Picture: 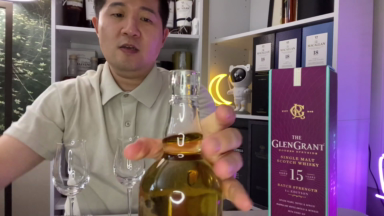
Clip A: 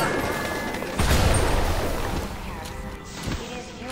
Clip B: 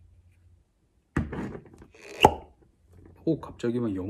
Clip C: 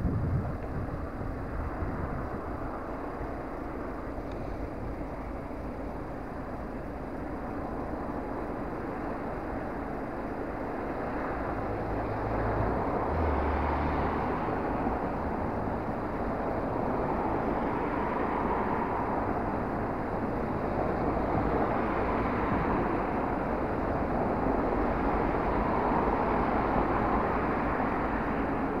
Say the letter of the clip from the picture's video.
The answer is B